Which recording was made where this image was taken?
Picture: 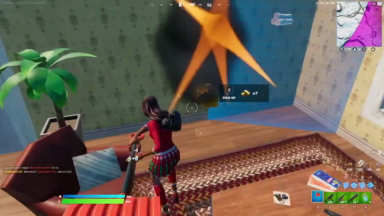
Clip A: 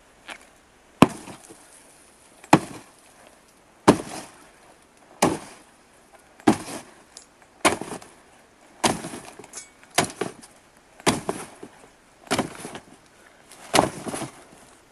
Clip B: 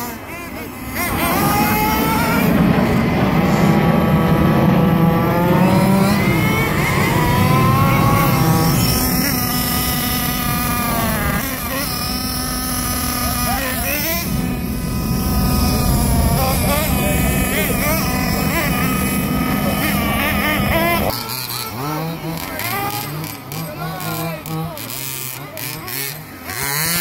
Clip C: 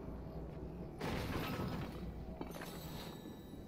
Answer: C